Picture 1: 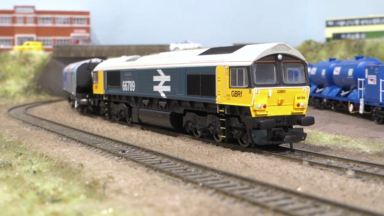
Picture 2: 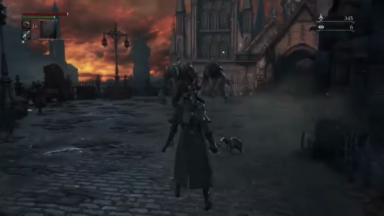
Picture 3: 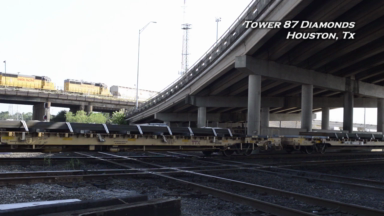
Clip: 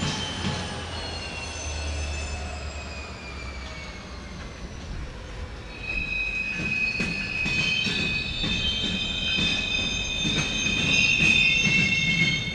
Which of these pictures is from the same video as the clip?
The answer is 3